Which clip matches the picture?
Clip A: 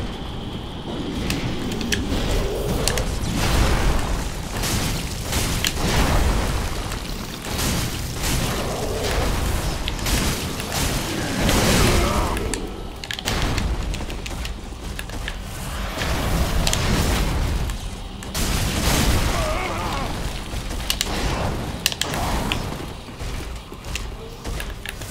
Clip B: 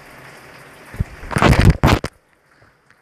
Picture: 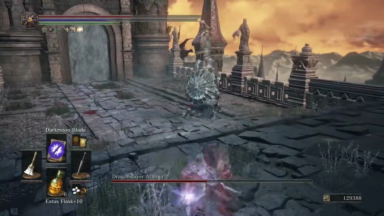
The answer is A